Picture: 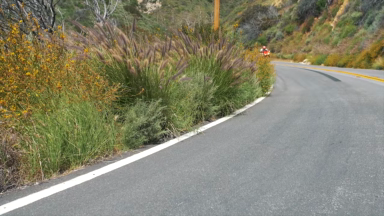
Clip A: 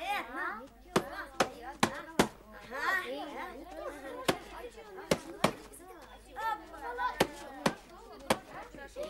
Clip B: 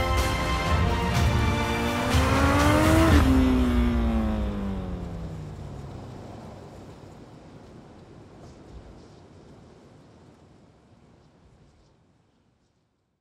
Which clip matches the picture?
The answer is B